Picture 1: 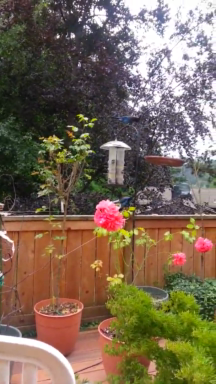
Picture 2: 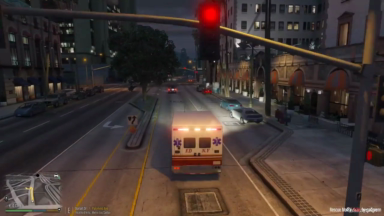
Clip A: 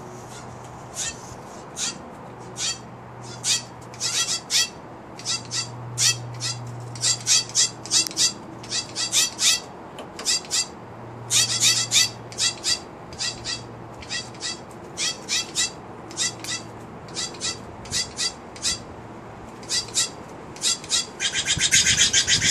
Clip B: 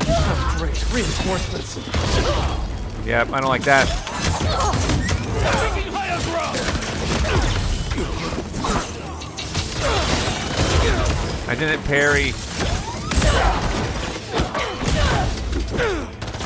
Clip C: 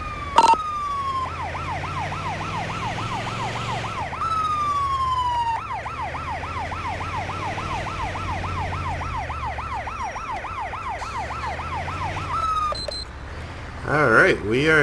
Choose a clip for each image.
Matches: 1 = A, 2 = C